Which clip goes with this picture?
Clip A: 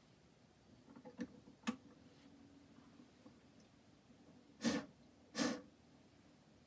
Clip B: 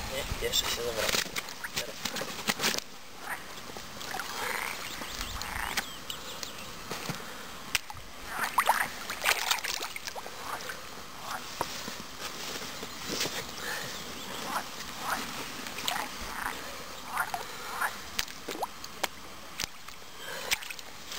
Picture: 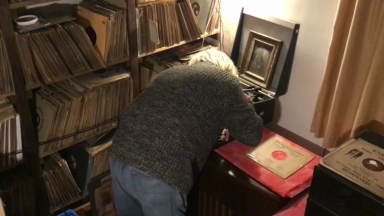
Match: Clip A